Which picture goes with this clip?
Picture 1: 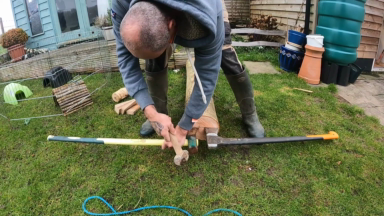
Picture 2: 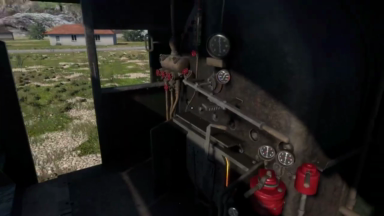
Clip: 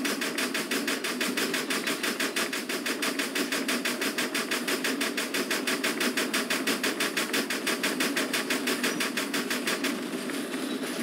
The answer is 2